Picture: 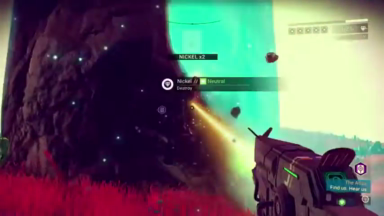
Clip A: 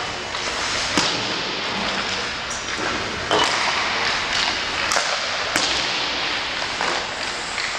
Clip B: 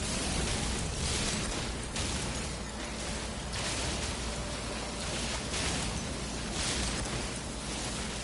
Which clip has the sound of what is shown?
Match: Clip B